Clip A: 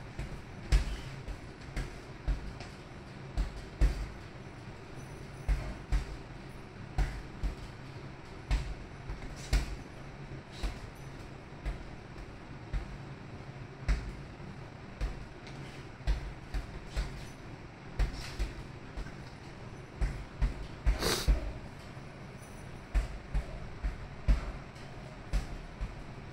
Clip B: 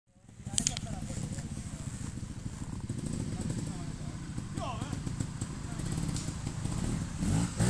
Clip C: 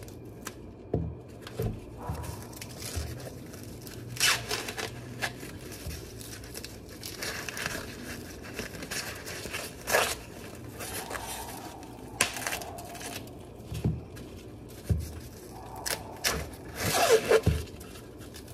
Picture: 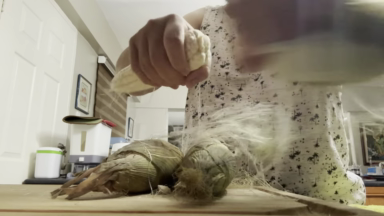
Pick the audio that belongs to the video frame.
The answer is C